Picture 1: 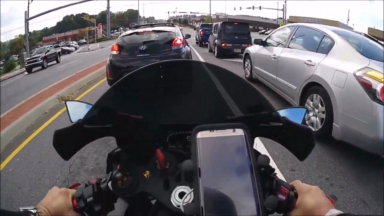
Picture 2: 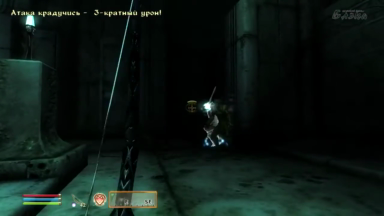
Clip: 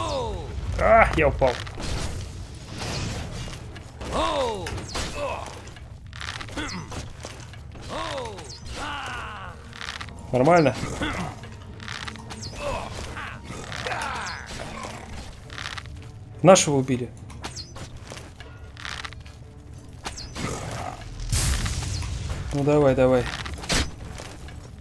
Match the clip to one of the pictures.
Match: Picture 2